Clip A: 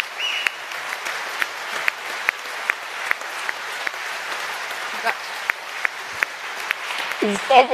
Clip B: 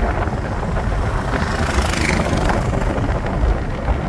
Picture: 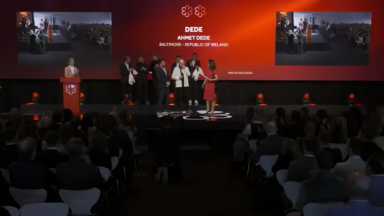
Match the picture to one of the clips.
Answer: A